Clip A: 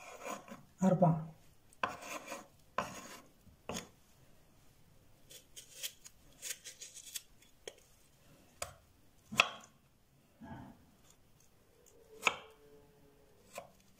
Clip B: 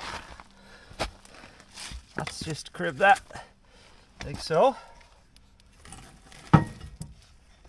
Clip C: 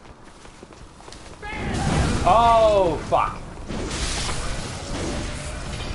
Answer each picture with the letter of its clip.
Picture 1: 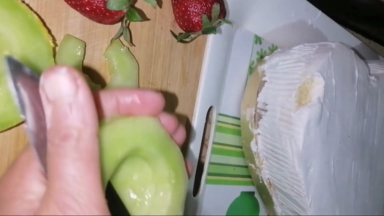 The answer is A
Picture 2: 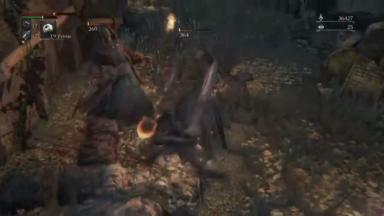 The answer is C